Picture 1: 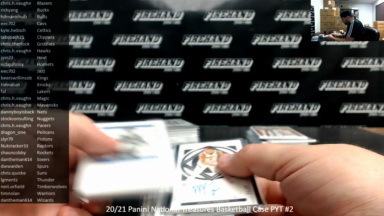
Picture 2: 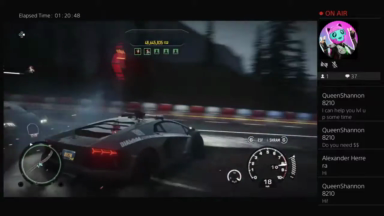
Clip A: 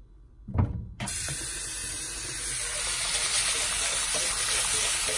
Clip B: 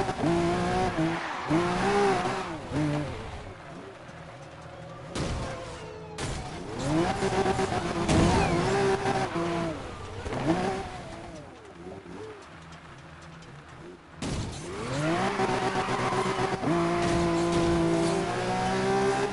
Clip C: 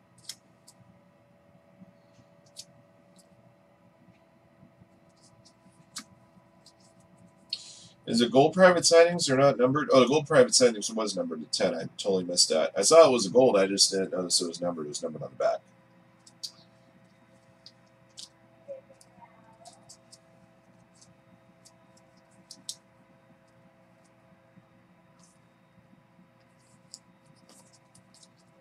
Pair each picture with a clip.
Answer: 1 C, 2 B